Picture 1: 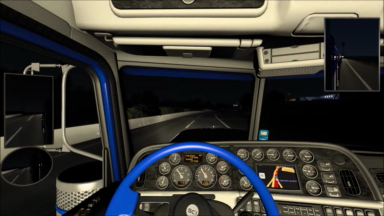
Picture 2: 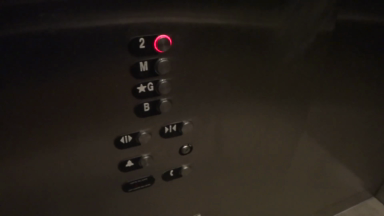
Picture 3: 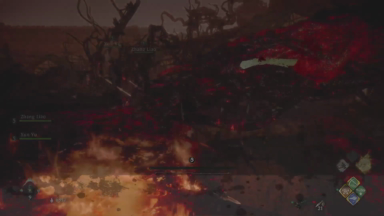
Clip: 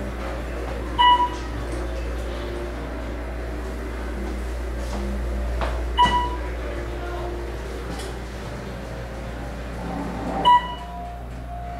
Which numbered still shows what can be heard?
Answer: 2